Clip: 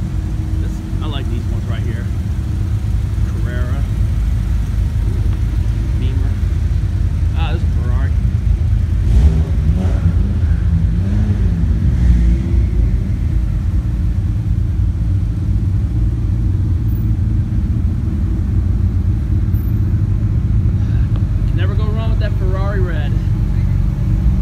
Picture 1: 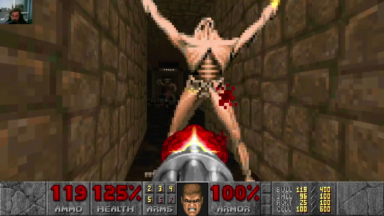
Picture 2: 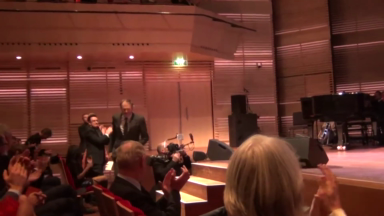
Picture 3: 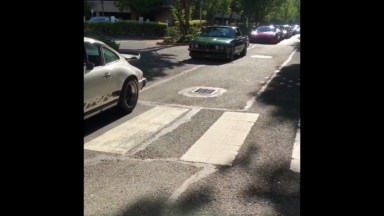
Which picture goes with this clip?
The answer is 3